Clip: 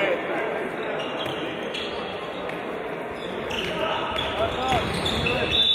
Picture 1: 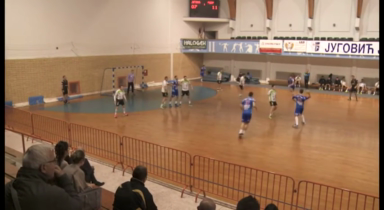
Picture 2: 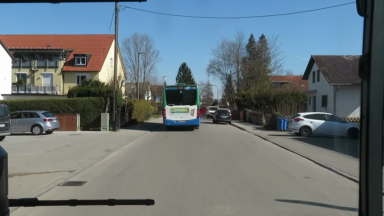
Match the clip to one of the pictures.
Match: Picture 1